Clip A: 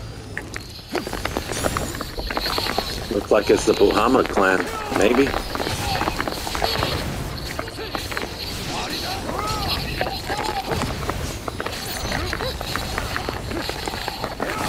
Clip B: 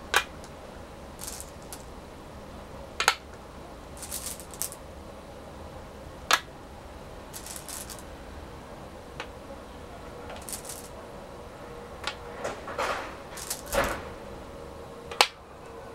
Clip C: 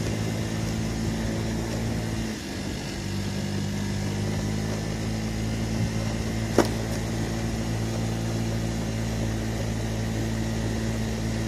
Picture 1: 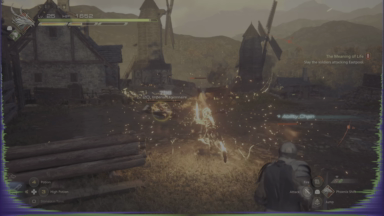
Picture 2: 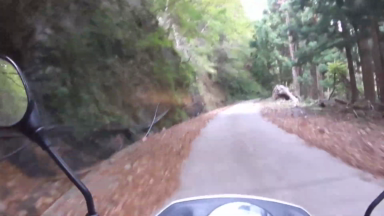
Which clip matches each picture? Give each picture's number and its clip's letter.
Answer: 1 A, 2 C